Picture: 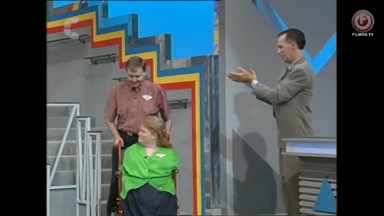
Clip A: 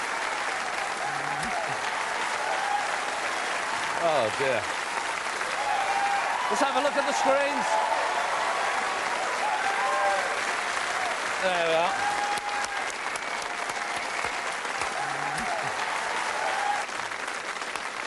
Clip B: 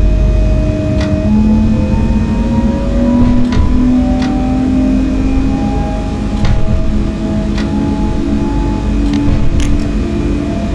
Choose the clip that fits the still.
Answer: A